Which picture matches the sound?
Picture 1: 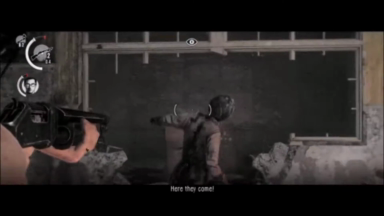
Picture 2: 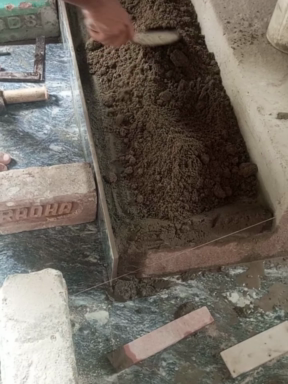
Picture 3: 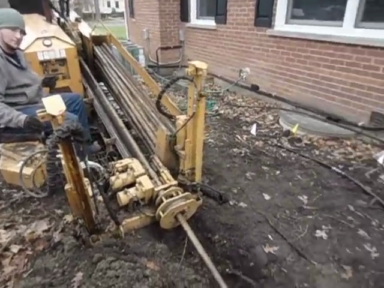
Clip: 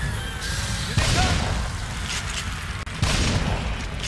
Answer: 1